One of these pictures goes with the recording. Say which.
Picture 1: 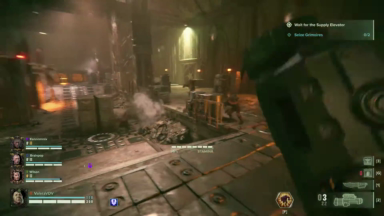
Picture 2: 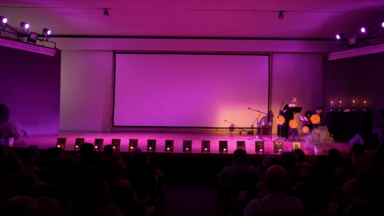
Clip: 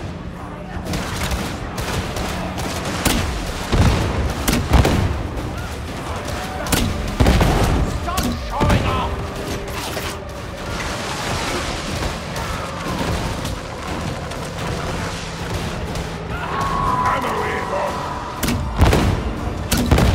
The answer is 1